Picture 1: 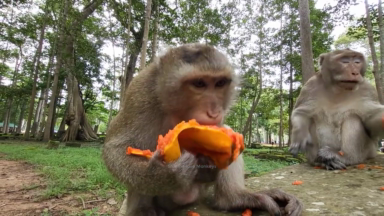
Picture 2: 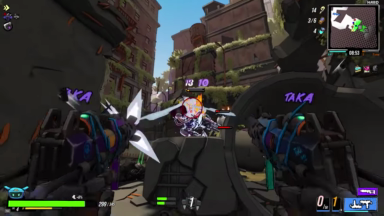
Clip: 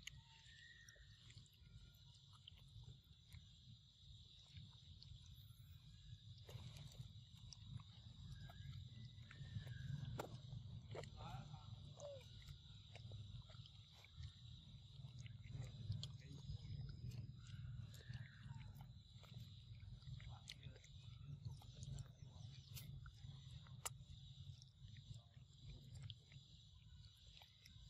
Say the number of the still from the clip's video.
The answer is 1